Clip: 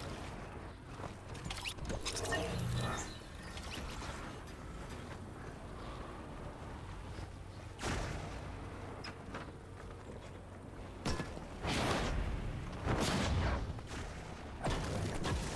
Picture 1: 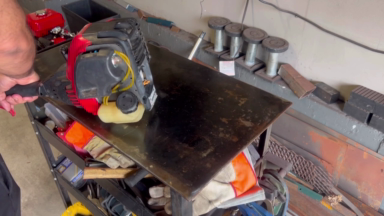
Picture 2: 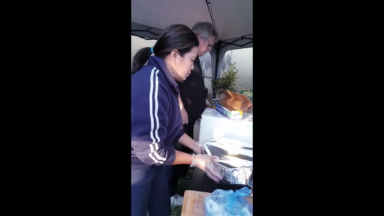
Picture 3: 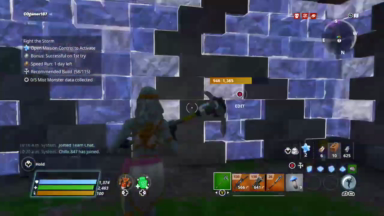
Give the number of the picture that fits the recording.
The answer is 3